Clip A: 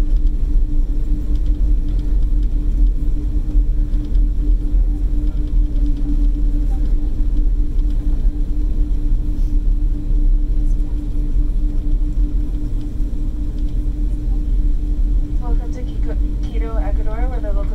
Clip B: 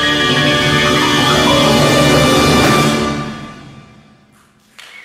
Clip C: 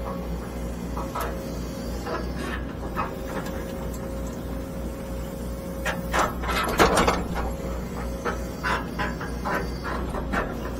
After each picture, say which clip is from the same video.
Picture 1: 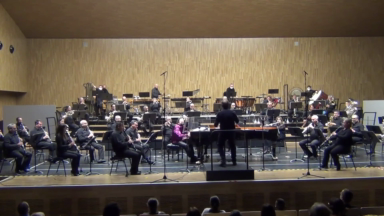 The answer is B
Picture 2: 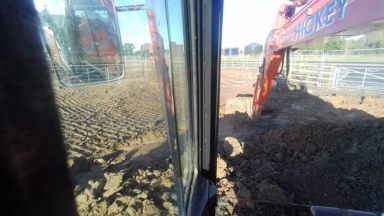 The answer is C